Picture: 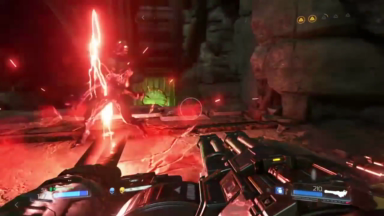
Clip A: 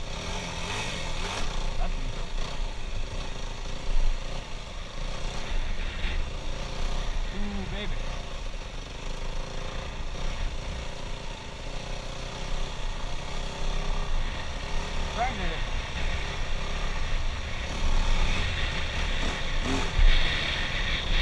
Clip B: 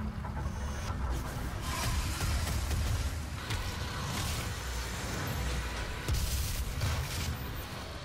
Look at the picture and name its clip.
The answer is B